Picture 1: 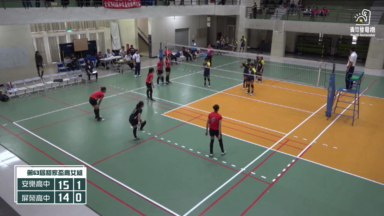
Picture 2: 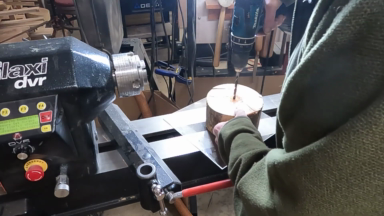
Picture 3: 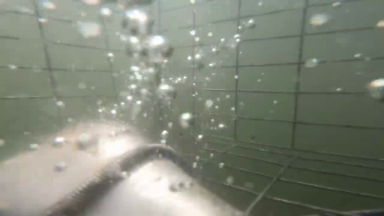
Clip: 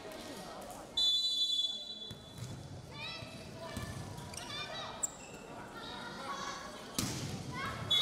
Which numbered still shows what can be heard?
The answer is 1